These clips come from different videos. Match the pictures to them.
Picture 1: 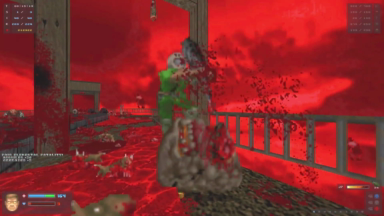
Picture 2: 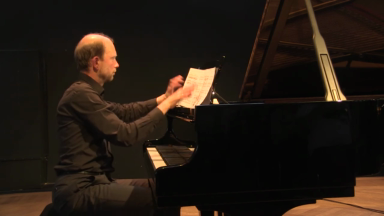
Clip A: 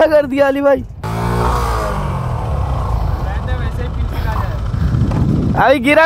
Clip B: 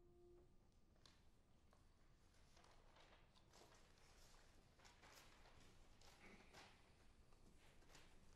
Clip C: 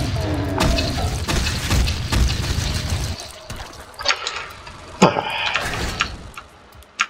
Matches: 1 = C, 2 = B